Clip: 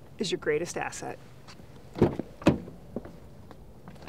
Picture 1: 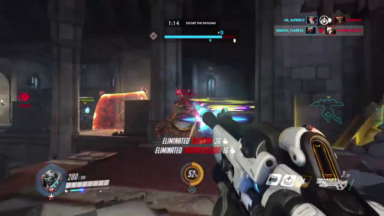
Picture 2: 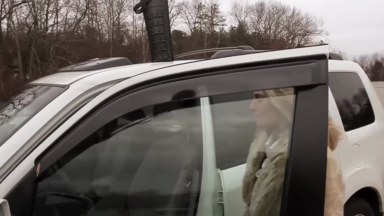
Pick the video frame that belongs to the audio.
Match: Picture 2